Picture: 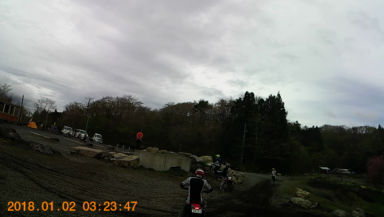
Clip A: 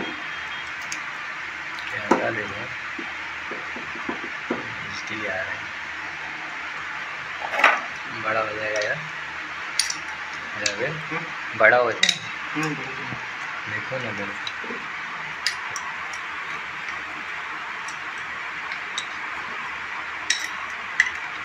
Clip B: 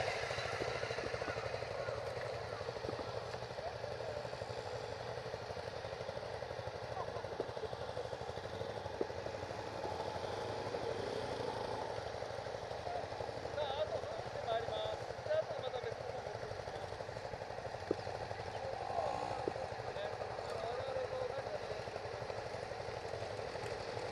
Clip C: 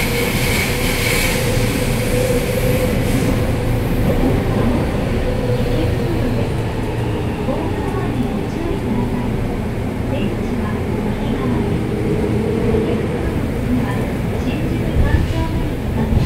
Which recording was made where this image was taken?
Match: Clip B